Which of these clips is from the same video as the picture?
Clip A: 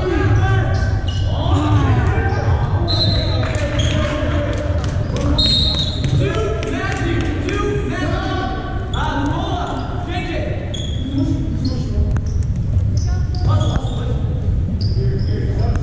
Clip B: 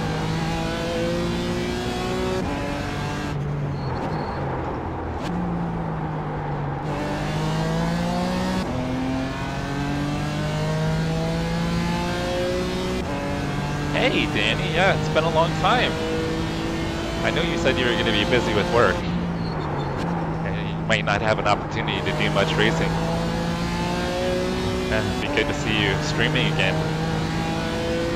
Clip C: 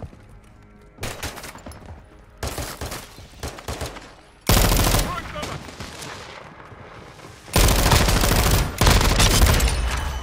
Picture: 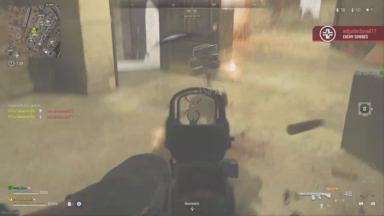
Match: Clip C